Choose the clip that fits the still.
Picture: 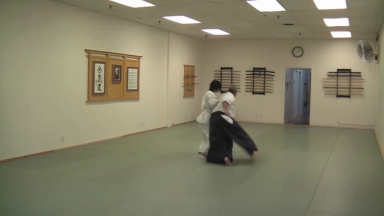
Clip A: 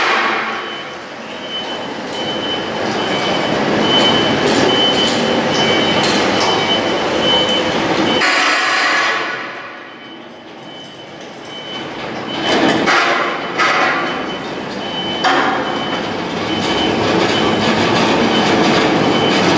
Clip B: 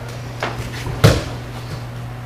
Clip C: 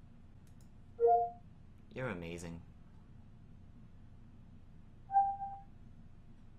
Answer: B